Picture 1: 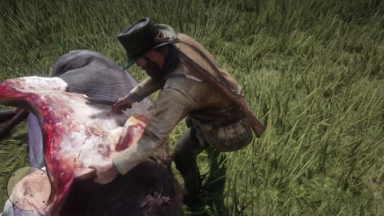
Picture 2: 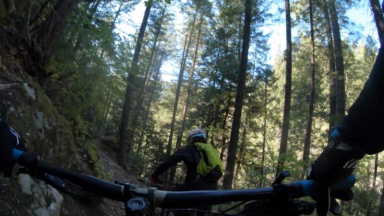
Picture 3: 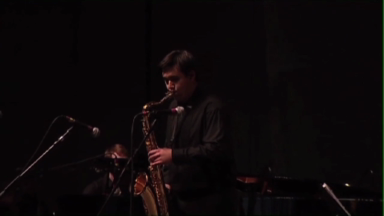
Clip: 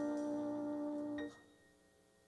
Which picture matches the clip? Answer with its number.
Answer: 3